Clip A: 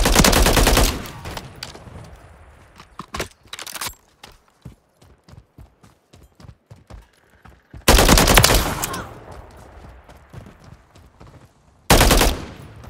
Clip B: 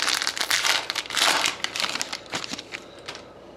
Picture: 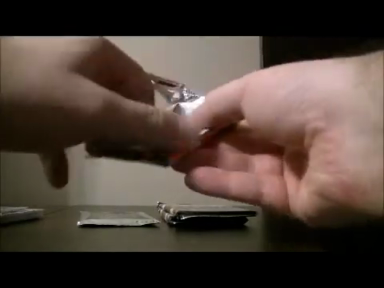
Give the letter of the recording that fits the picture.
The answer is B